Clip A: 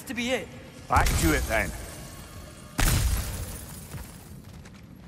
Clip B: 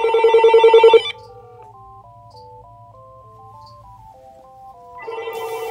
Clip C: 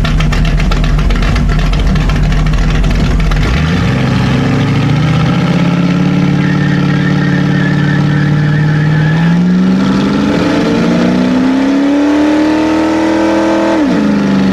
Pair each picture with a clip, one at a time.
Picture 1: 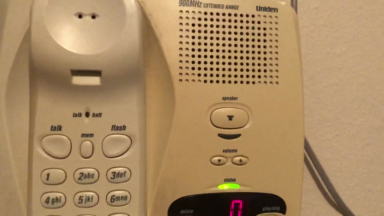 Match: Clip B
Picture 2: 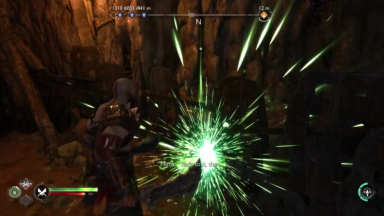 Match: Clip A